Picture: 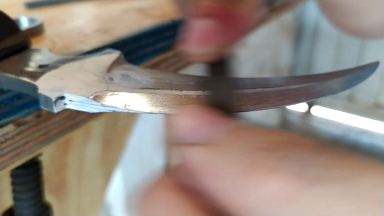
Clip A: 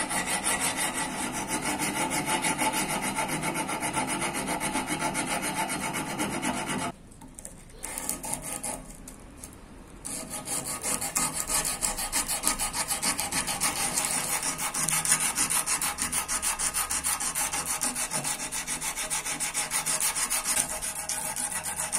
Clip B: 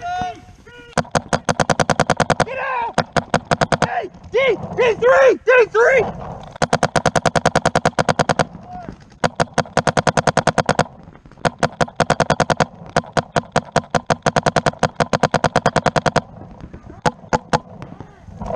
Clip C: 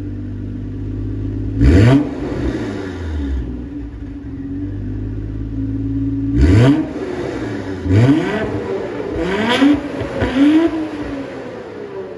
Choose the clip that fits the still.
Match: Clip A